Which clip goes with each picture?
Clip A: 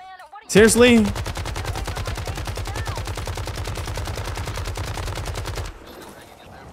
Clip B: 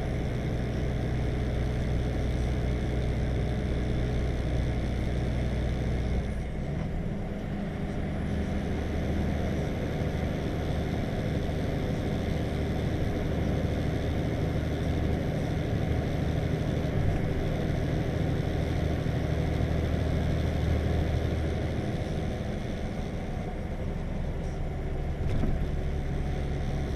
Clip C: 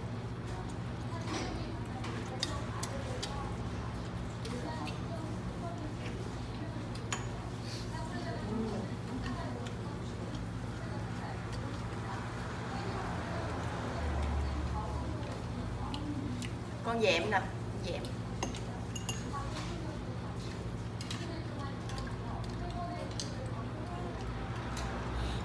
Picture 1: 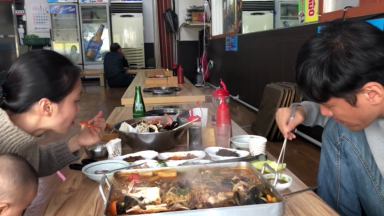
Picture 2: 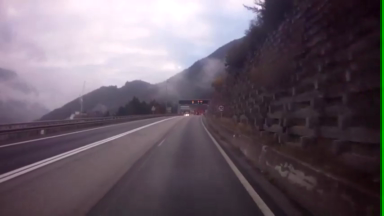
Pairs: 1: C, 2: B